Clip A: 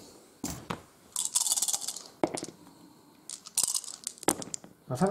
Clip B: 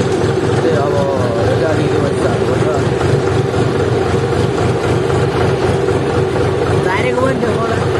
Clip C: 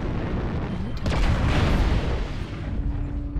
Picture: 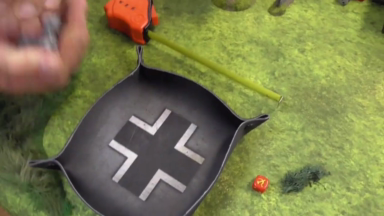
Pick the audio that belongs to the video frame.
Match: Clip A